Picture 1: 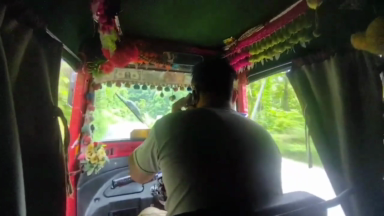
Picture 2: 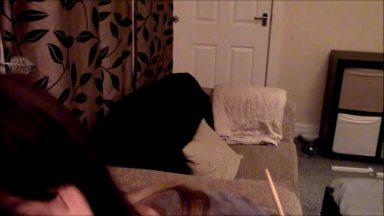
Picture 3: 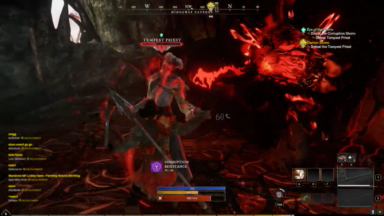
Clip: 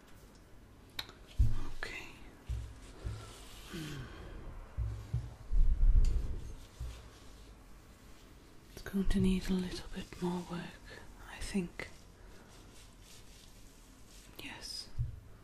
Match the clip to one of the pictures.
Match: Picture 2